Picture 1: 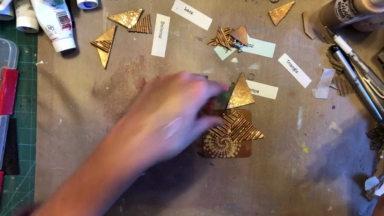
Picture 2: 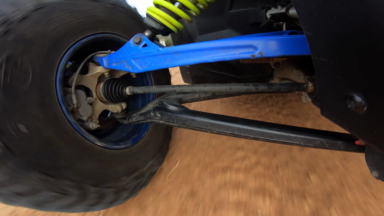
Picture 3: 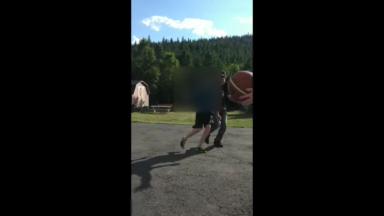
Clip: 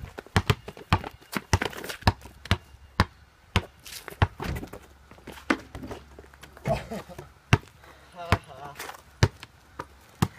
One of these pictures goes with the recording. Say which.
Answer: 3